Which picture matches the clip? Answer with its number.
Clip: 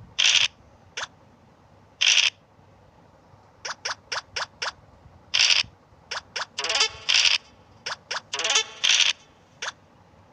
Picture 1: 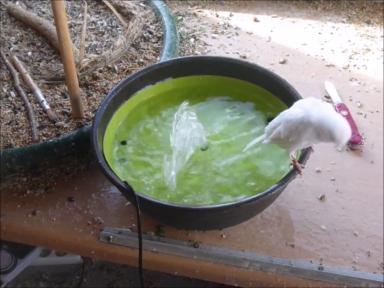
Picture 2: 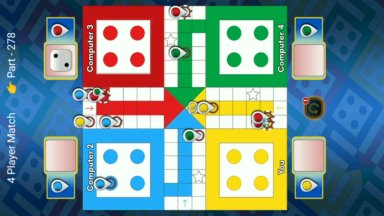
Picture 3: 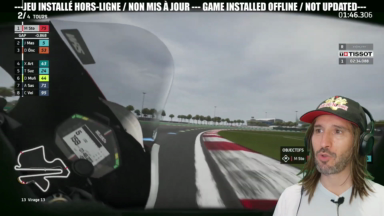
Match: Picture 2